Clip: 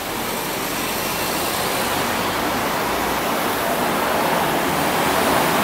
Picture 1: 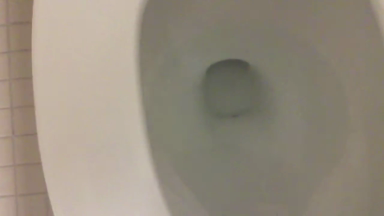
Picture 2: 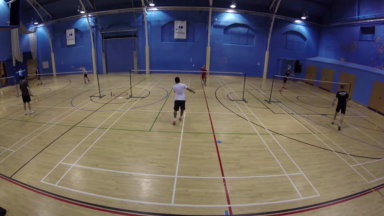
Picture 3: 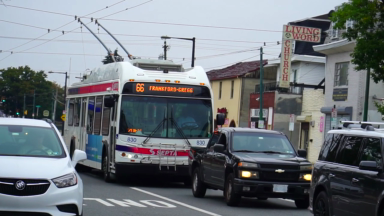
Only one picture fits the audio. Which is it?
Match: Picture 3